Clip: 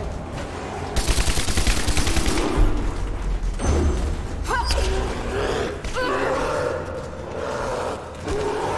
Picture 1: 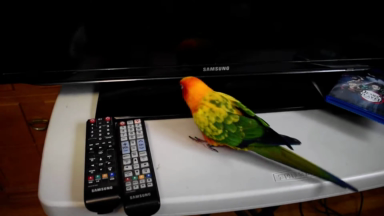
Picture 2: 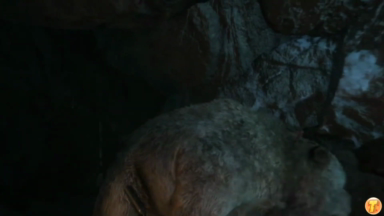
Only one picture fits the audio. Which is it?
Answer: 2